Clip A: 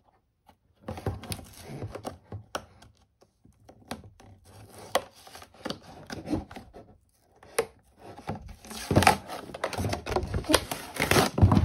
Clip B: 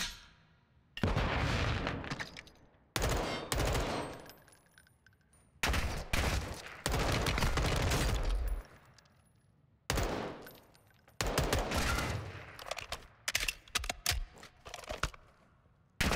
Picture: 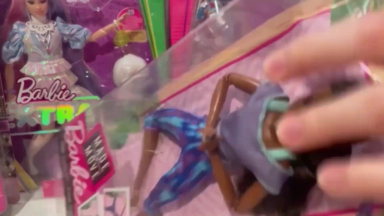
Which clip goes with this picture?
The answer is A